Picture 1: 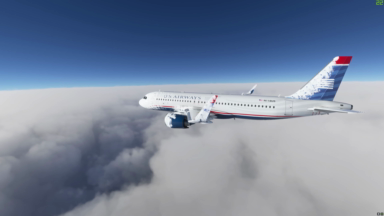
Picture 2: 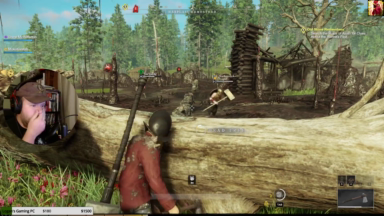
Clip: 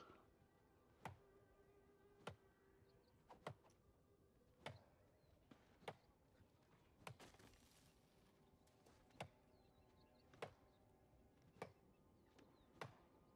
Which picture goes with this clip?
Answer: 2